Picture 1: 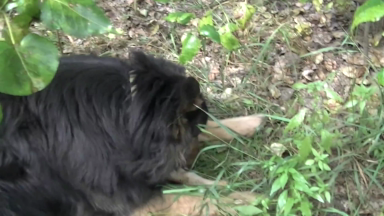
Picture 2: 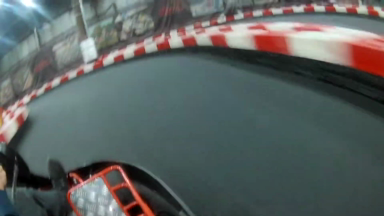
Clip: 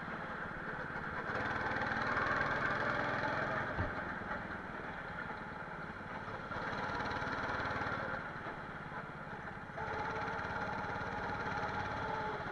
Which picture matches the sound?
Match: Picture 2